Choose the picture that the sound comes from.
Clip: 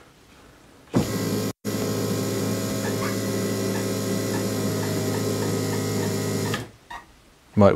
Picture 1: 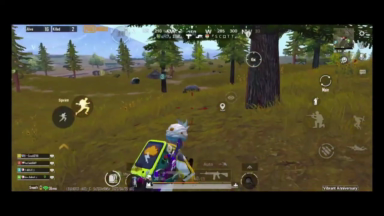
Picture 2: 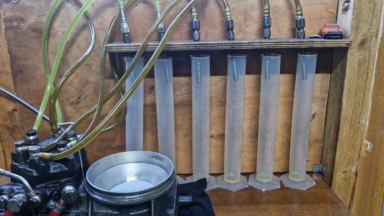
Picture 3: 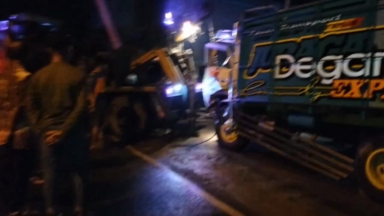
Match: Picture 2